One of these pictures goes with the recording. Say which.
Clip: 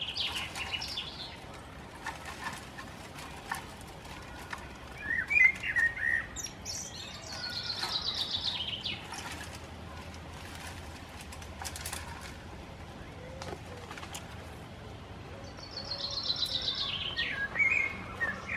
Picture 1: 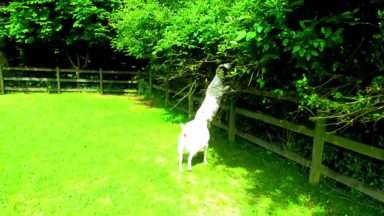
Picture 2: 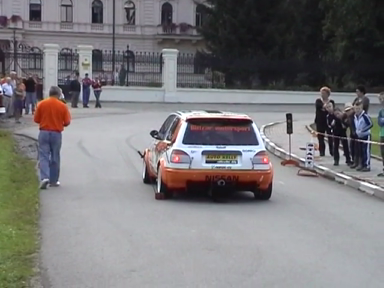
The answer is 1